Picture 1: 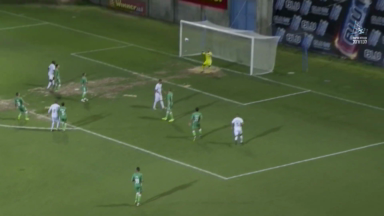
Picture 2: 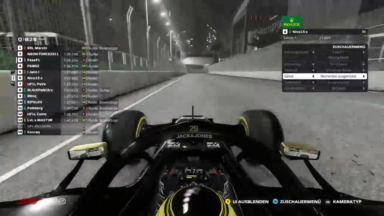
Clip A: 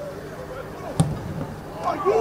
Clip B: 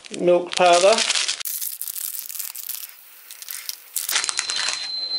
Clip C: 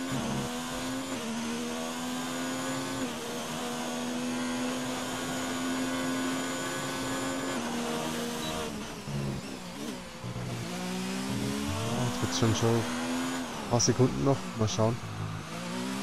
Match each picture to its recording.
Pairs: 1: A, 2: C